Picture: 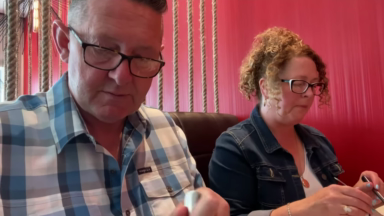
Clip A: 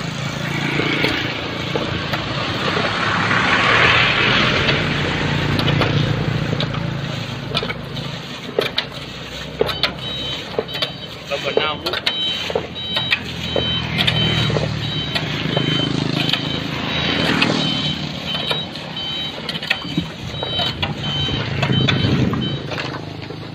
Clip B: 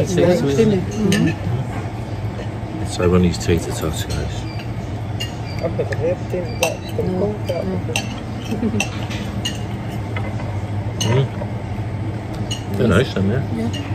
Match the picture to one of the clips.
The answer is B